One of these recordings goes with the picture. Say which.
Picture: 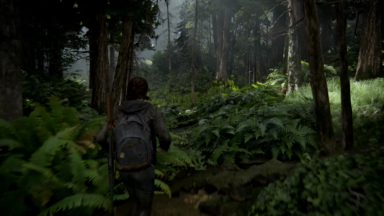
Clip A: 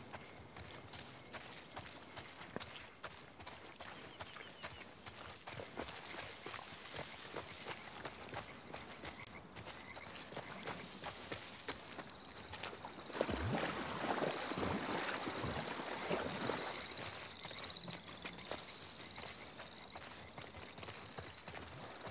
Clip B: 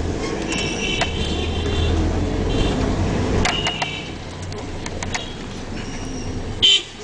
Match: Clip A